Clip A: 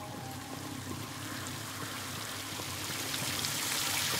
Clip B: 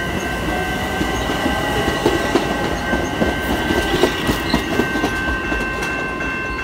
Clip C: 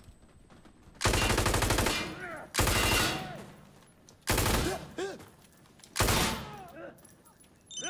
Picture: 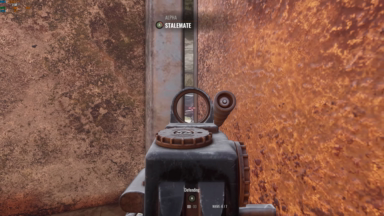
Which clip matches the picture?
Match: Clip C